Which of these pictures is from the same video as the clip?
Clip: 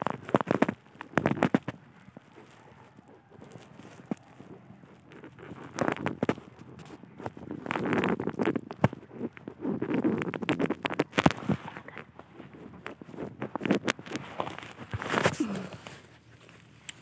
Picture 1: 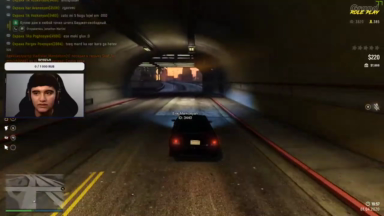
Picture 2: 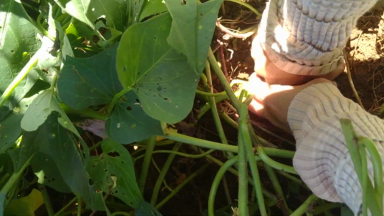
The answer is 2